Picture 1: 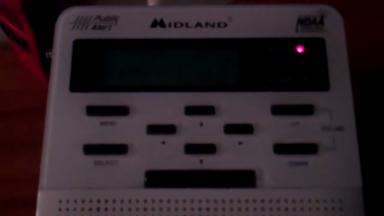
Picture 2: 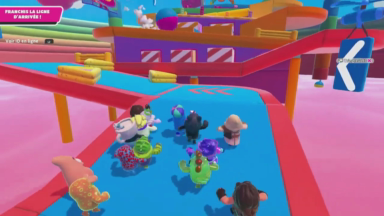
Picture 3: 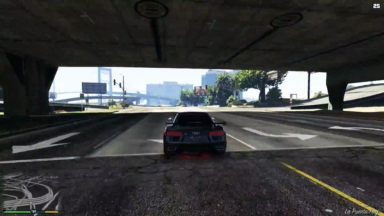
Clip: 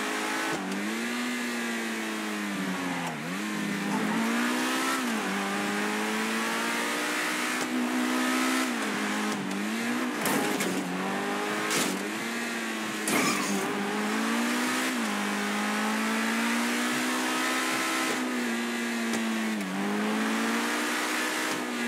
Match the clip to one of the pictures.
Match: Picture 3